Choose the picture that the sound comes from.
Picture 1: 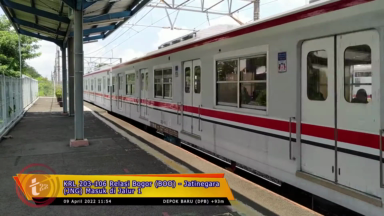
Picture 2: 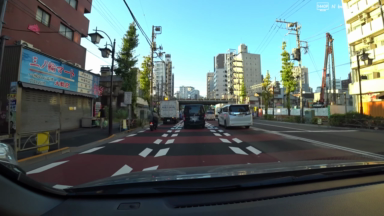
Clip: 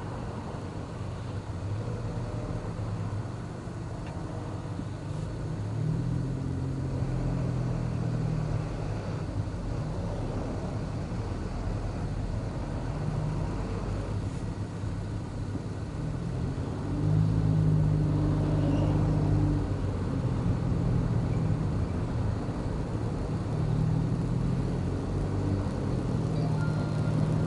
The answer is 2